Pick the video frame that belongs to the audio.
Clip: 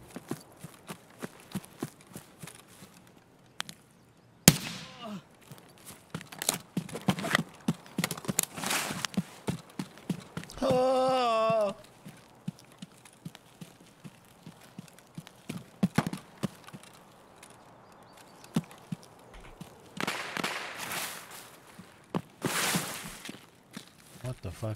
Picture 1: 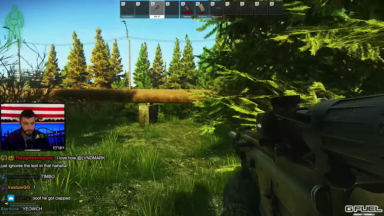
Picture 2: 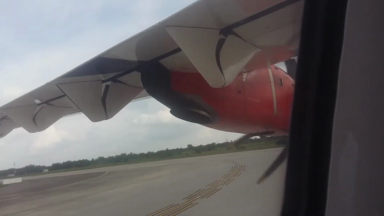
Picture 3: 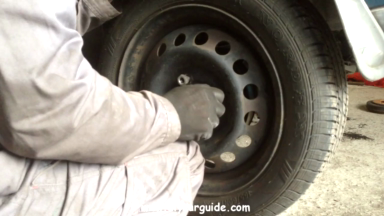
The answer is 1